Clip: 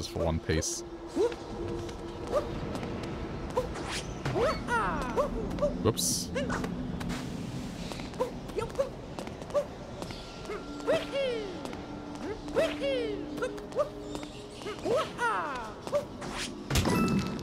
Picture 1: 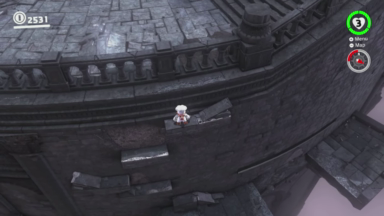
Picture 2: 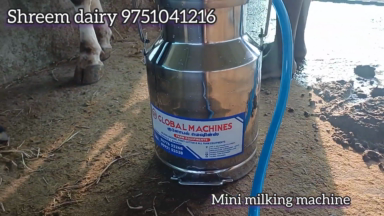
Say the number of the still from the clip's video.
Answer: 1